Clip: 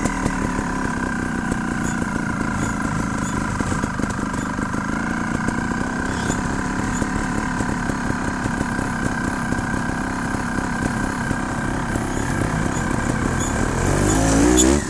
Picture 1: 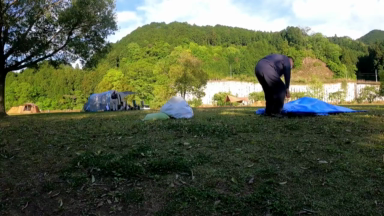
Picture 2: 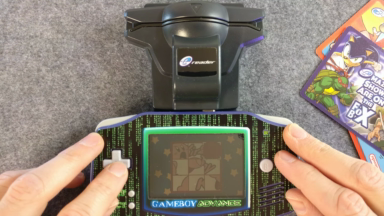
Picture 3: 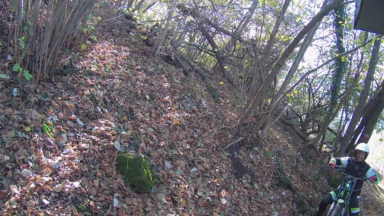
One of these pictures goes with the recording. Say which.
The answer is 3